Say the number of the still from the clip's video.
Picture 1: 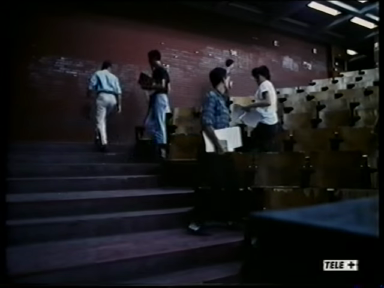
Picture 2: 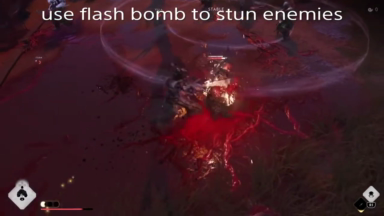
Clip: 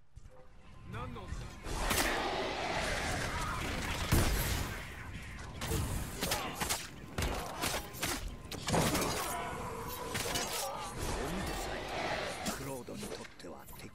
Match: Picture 2